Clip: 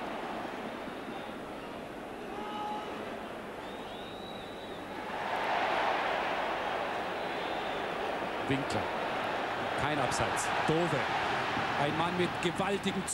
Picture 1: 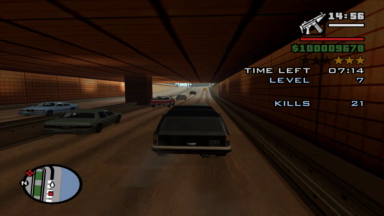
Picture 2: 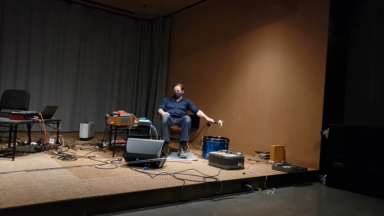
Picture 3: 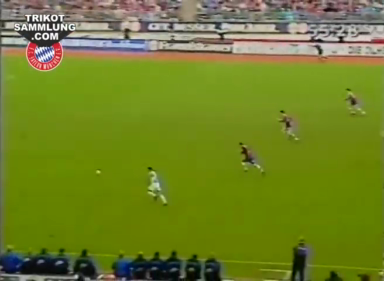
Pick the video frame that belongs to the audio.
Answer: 3